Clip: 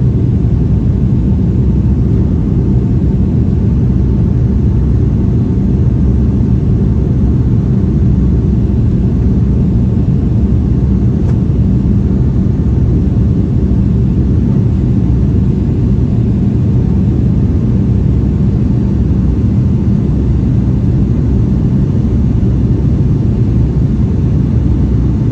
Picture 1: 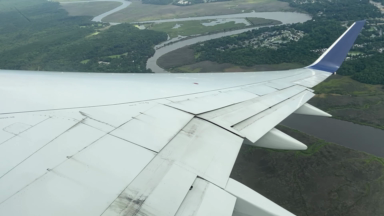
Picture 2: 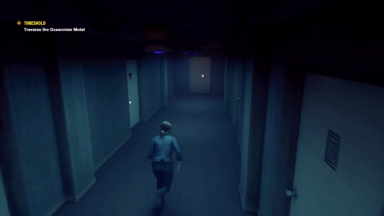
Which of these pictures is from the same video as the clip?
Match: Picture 1